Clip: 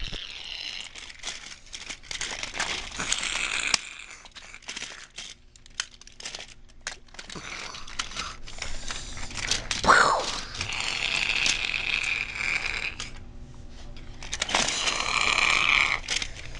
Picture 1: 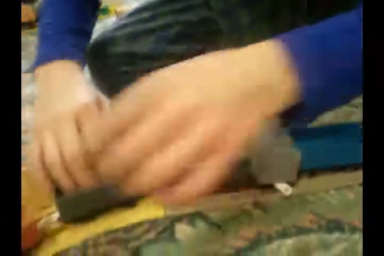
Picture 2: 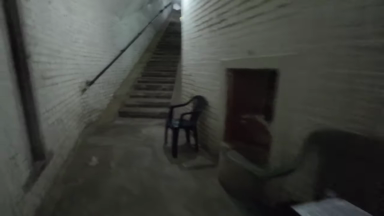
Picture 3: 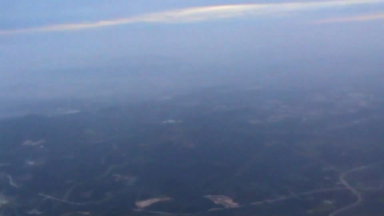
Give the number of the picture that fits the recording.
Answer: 1